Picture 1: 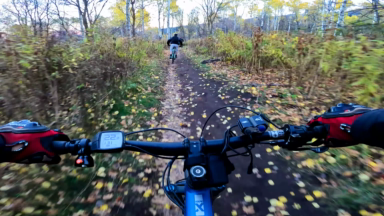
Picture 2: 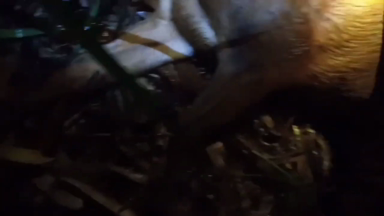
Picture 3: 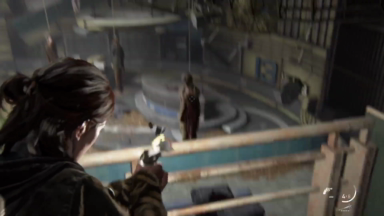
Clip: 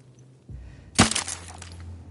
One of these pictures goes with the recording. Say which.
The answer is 3